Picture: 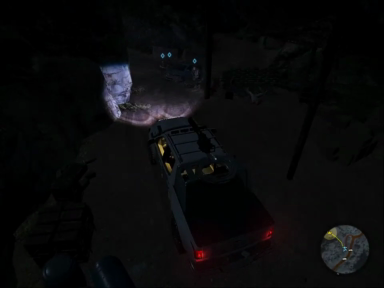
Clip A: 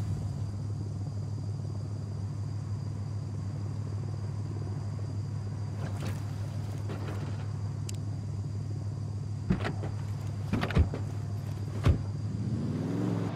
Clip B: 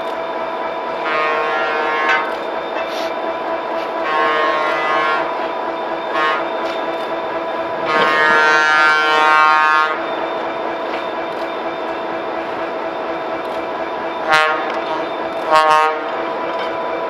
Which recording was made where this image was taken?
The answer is A